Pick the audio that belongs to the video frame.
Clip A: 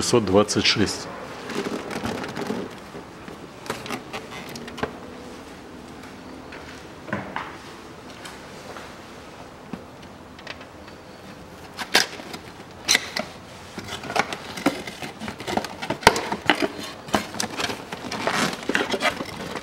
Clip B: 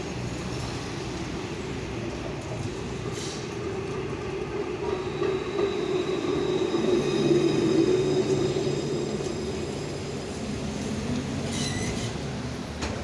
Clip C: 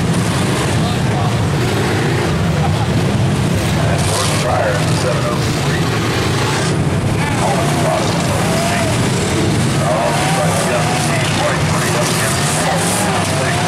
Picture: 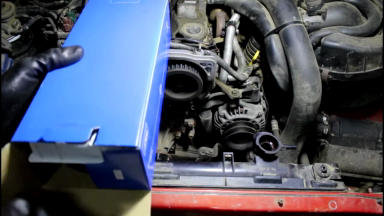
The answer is A